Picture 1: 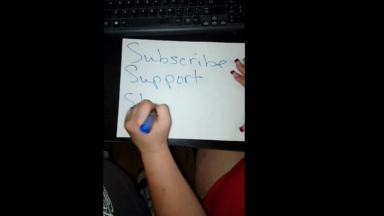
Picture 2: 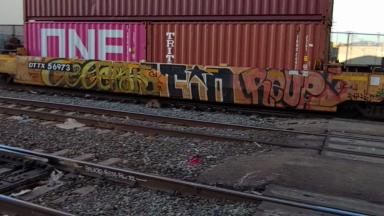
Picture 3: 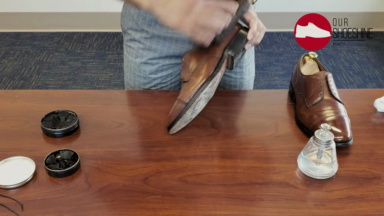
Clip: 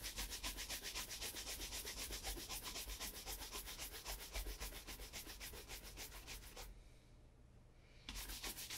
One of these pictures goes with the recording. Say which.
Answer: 3